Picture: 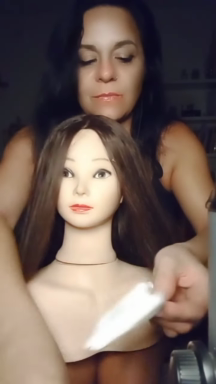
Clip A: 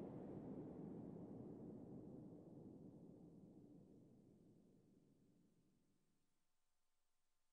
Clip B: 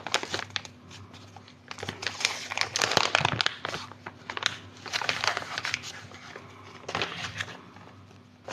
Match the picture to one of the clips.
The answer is B